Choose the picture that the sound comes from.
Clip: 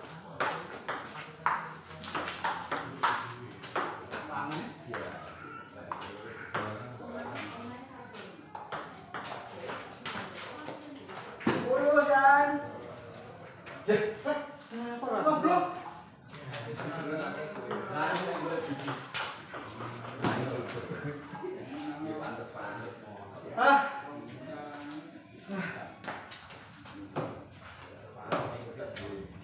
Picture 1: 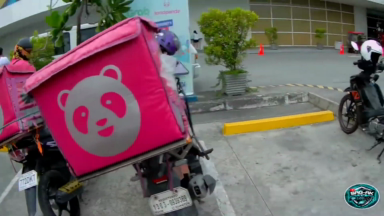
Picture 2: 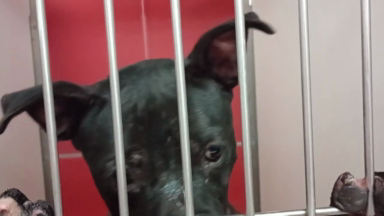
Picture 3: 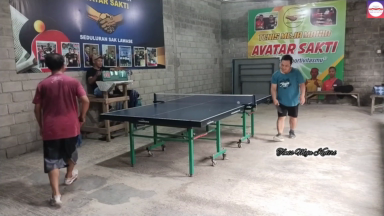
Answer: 3